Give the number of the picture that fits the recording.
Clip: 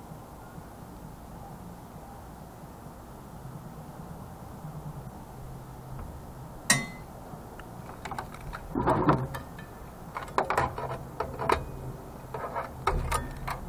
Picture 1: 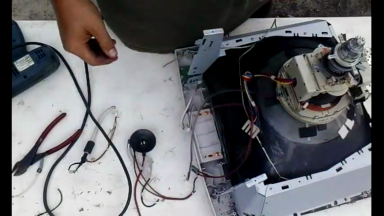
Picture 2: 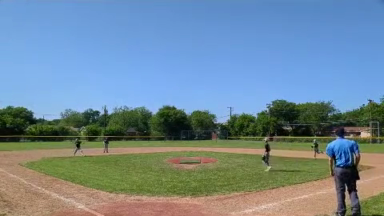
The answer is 1